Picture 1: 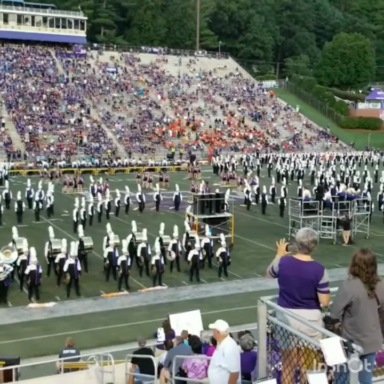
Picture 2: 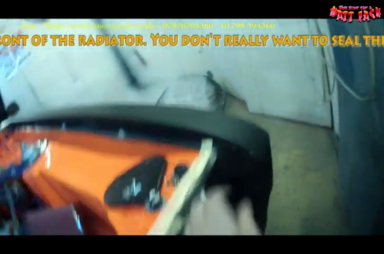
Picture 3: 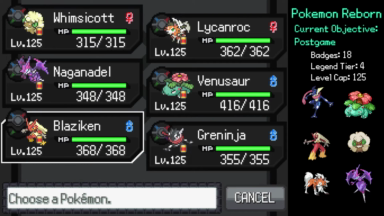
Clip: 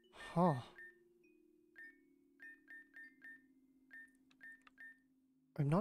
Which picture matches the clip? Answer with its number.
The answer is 3